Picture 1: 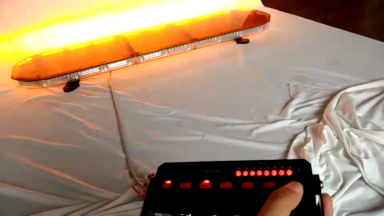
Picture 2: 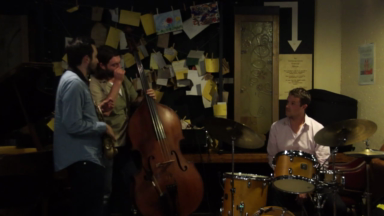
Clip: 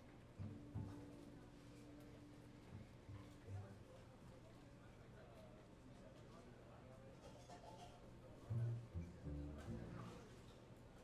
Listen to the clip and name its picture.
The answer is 2